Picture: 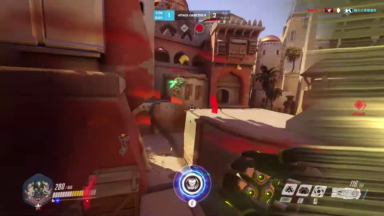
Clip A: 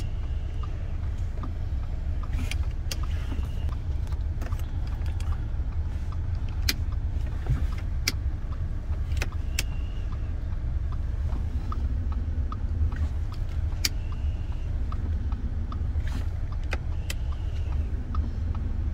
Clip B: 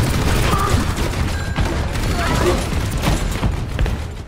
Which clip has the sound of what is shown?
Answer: B